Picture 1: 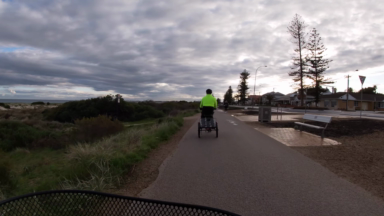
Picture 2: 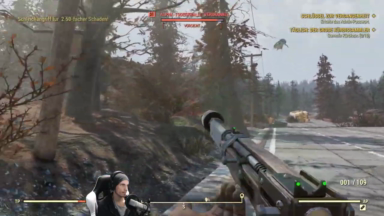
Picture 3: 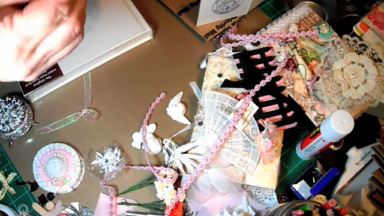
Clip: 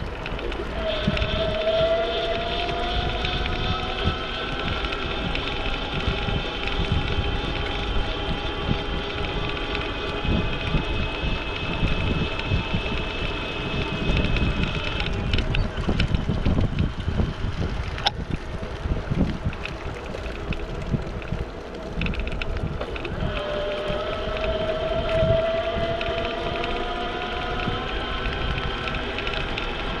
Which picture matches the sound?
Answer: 1